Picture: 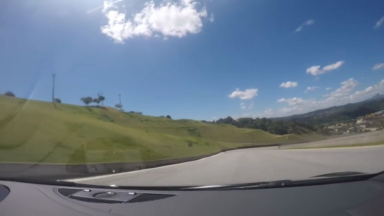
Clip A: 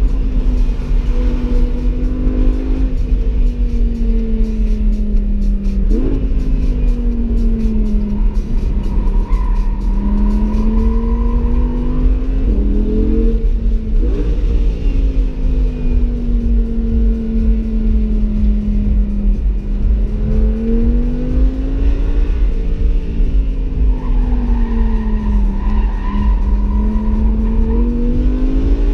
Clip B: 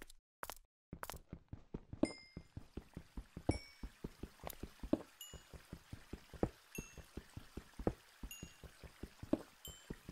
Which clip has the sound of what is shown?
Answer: A